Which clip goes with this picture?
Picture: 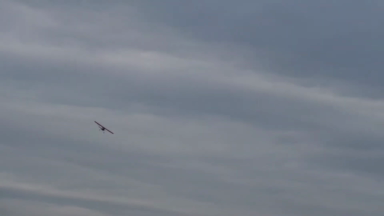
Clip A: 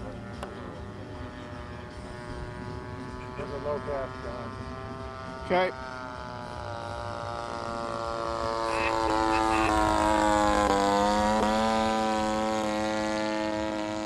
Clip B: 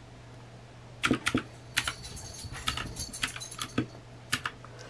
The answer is A